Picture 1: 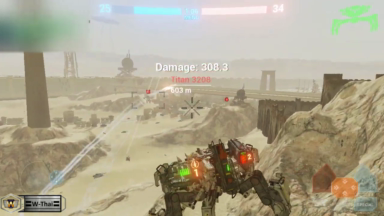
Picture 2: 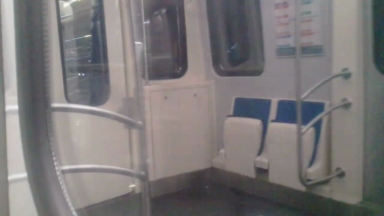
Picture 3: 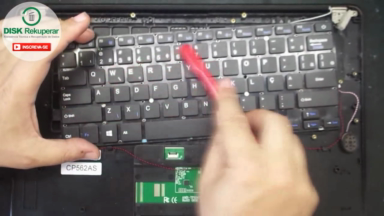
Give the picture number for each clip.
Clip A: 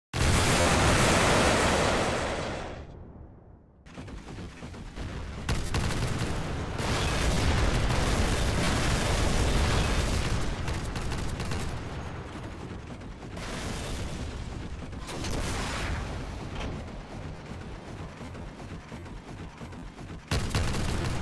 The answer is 1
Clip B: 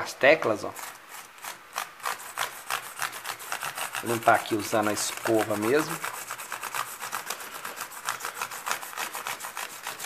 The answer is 3